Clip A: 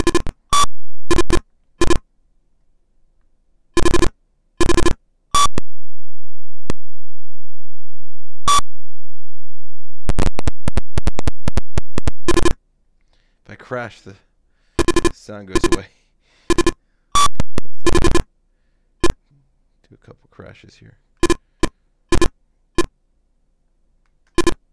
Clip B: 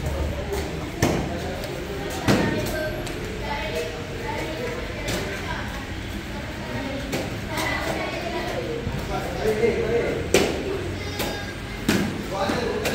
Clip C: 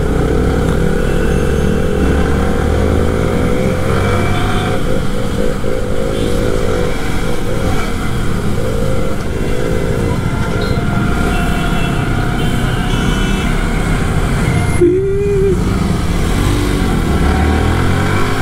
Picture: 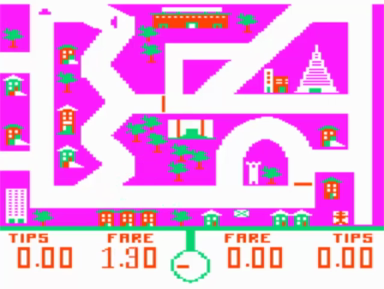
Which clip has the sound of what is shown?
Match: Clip A